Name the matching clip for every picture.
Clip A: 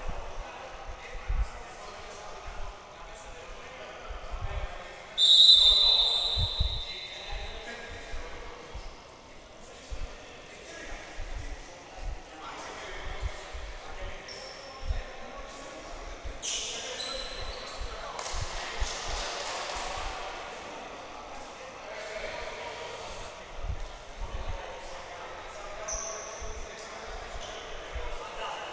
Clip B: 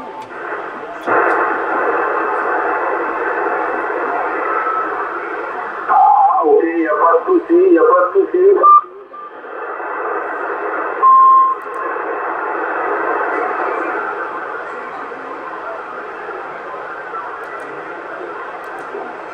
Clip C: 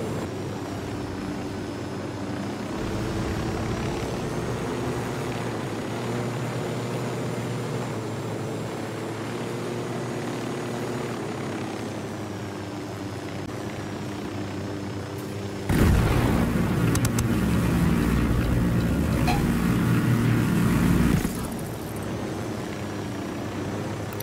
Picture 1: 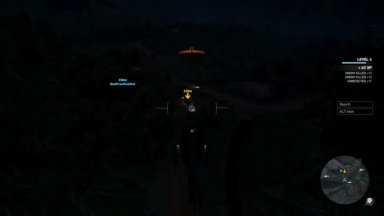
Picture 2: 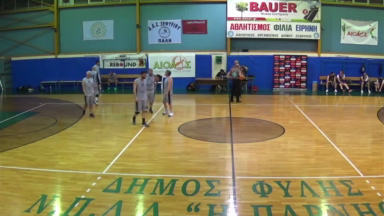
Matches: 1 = C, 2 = A